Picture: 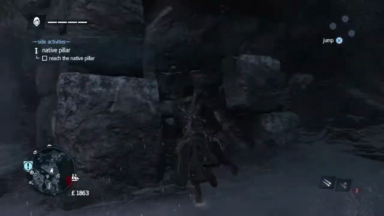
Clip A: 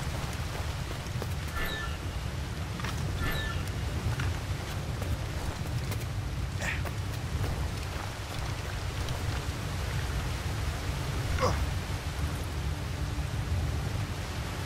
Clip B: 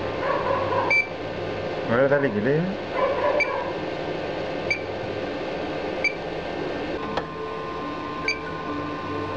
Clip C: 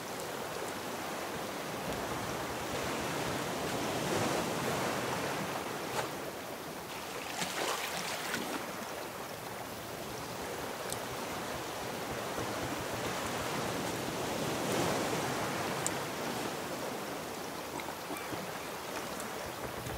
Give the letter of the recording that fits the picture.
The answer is A